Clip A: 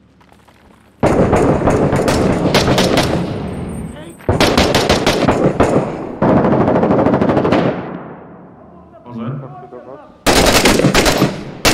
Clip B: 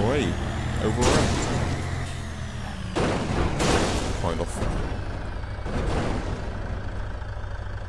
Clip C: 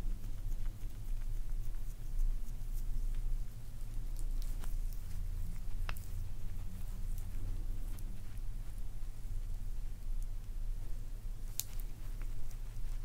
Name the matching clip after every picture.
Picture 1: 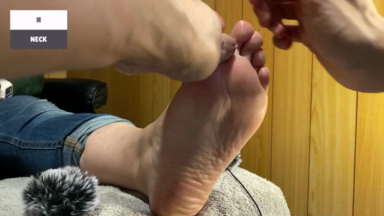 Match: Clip C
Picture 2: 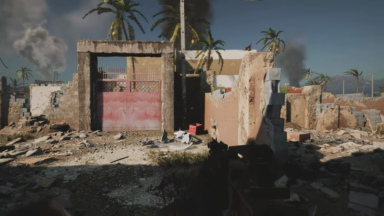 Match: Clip A